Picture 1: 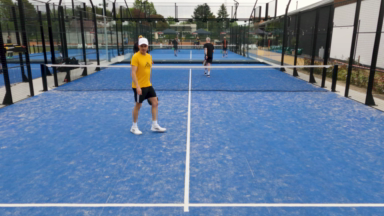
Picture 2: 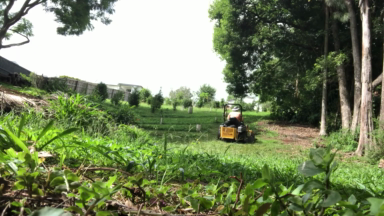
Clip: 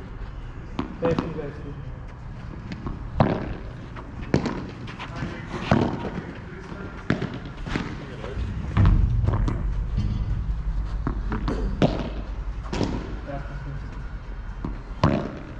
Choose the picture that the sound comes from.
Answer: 1